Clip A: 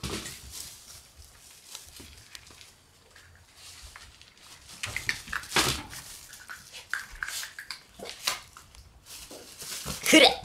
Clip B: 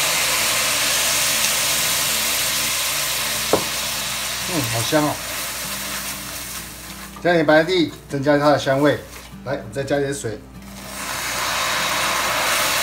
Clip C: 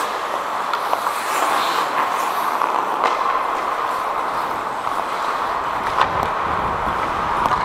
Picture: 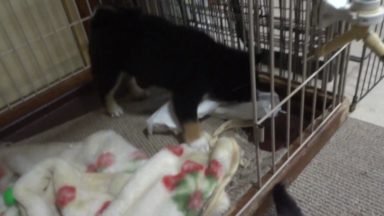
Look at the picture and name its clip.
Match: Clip A